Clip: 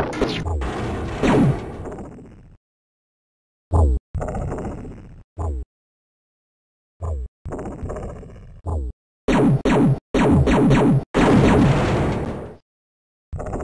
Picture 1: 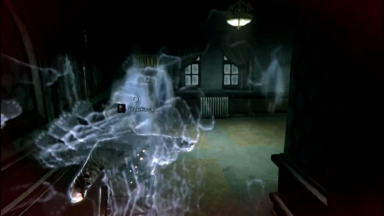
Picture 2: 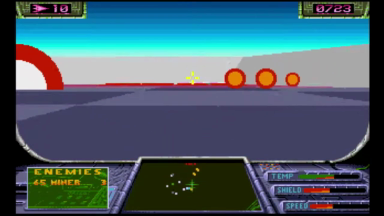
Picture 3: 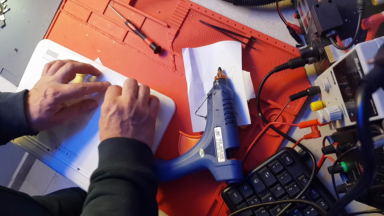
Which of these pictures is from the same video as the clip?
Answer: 2